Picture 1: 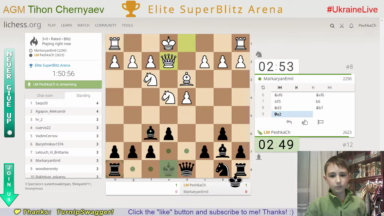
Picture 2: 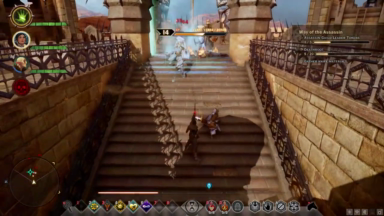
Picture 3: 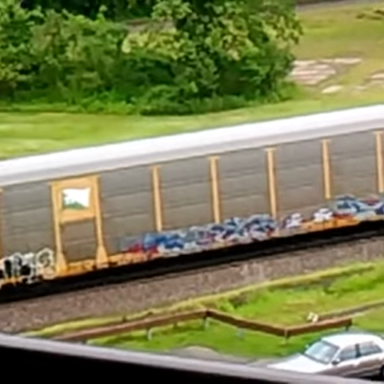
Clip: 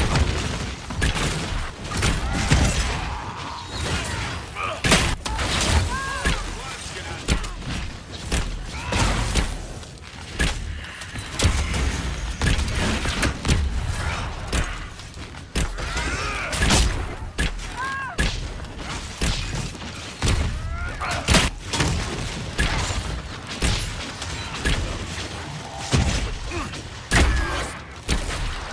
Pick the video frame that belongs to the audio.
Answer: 2